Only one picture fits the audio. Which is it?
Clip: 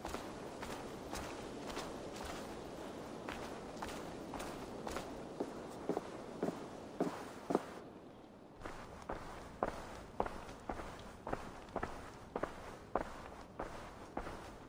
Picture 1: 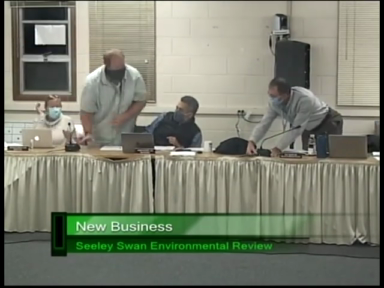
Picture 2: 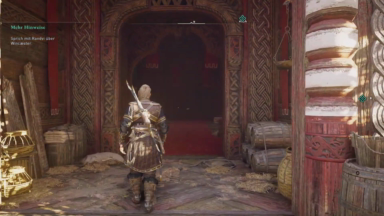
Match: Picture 2